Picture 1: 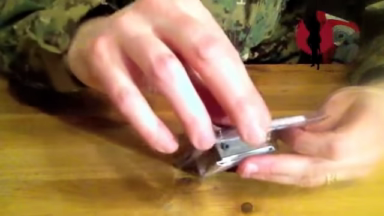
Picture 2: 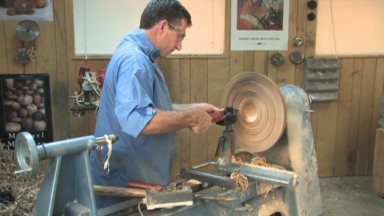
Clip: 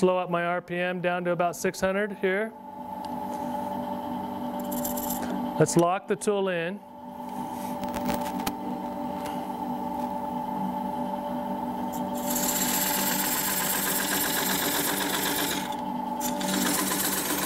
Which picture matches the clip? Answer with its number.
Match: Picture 2